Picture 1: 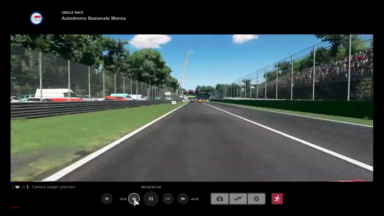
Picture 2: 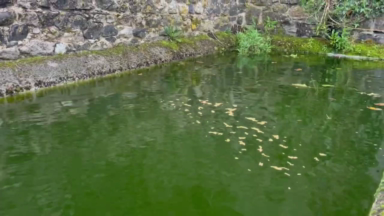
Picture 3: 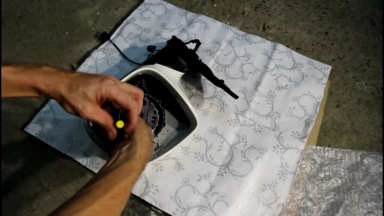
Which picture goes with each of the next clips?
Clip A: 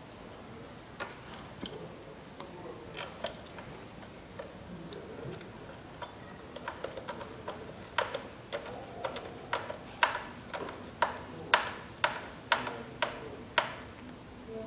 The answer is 3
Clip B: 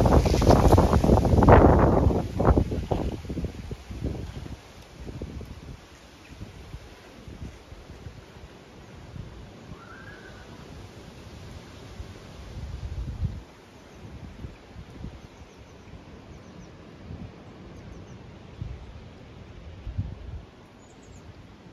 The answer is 2